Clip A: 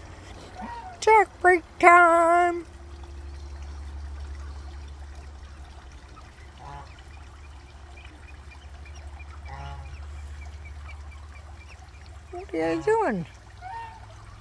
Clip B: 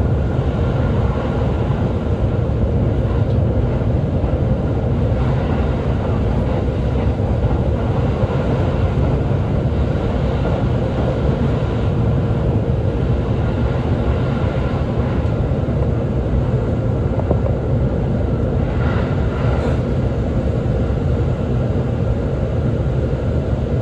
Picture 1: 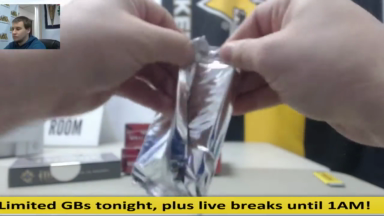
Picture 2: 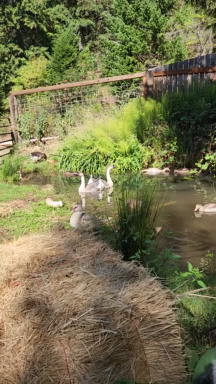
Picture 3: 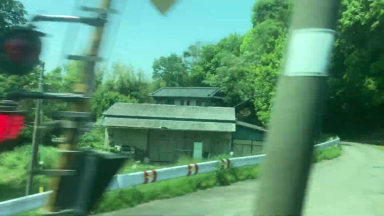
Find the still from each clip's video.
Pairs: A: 2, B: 3